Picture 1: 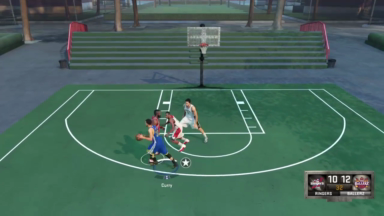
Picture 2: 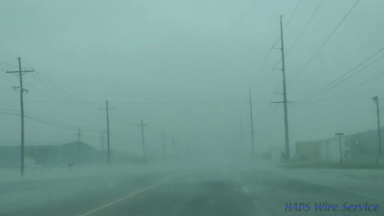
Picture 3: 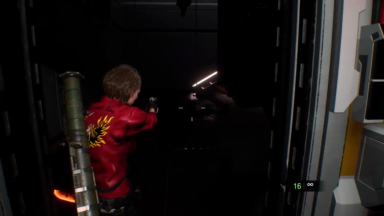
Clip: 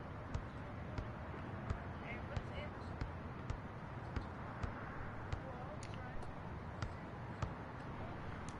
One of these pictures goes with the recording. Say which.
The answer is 1